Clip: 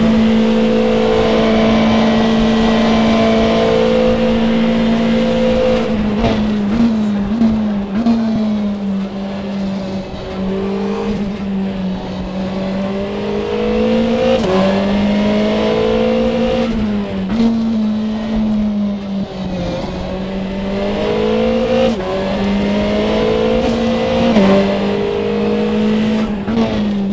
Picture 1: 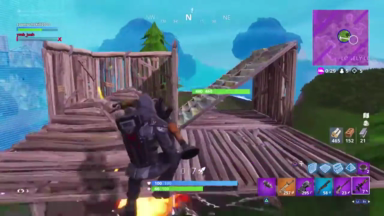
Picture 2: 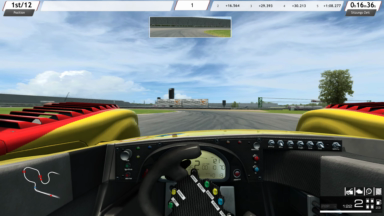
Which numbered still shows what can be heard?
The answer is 2